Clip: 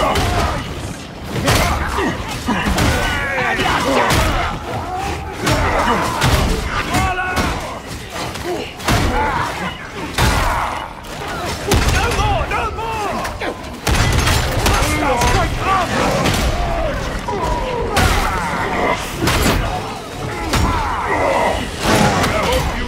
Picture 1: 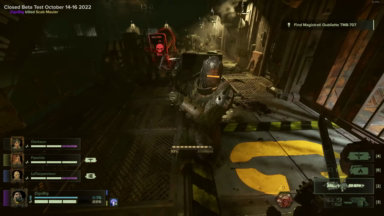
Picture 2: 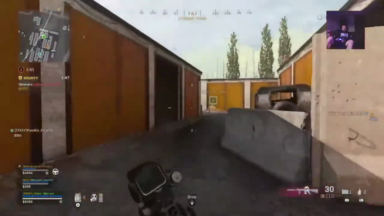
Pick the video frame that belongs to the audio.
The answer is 1